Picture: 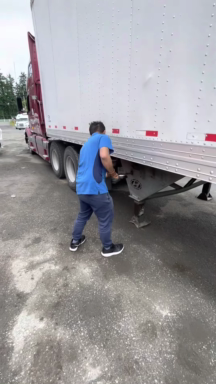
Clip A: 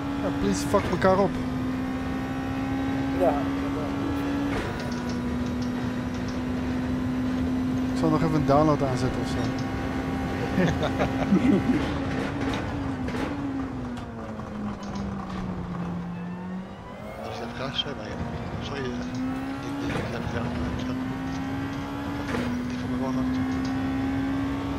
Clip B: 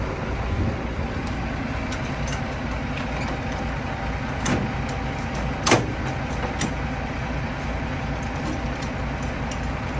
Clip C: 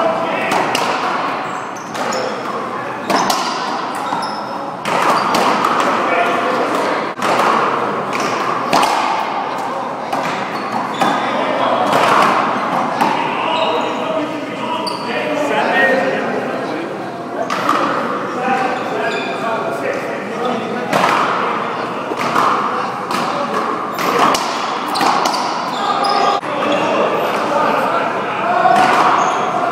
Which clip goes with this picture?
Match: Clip B